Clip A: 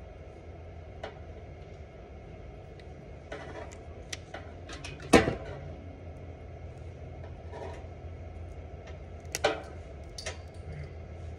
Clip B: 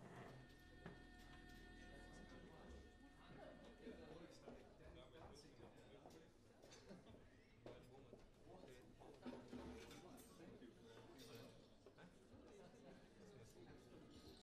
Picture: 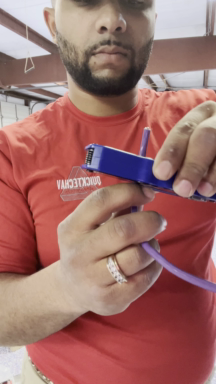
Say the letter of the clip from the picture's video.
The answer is A